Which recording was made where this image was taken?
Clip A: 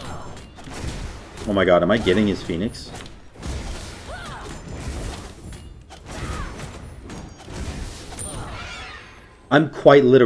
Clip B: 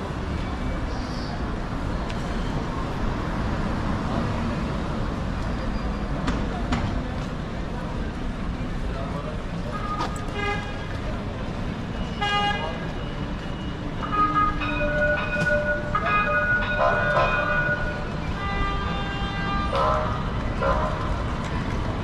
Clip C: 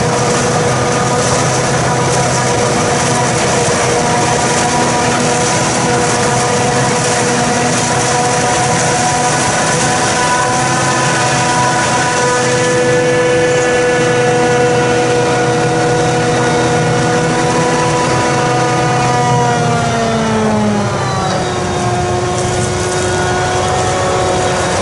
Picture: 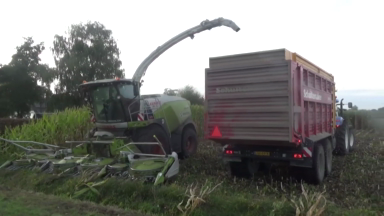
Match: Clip C